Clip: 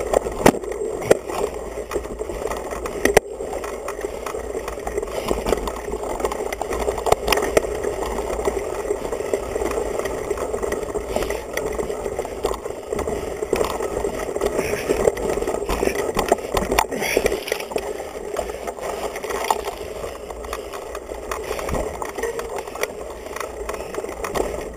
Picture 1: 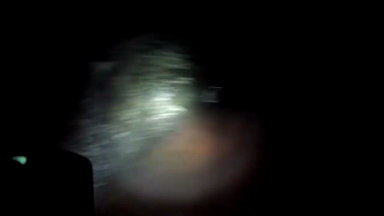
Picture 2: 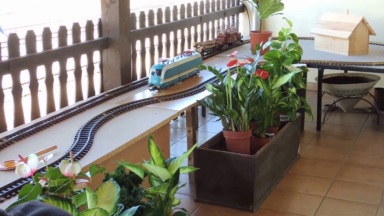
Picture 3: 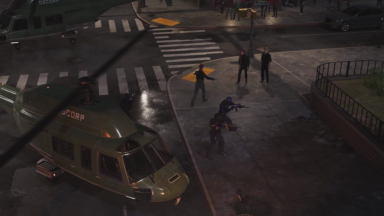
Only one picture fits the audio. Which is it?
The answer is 1